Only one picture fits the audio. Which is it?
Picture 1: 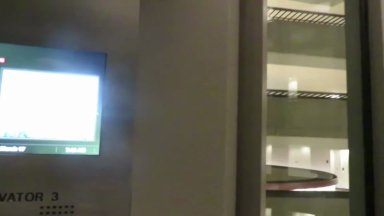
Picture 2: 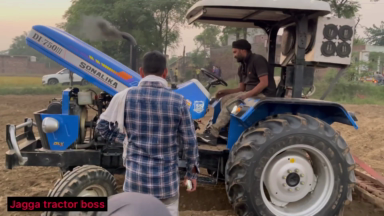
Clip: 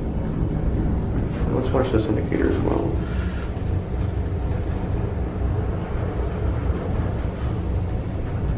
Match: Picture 1